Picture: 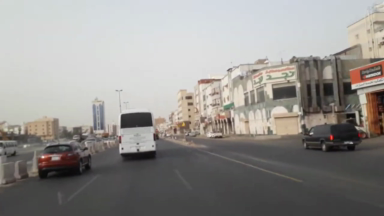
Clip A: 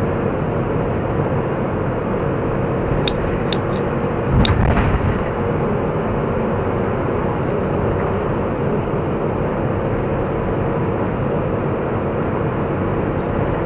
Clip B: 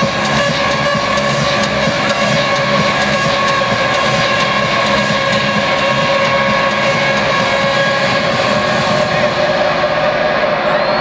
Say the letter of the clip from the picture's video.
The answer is A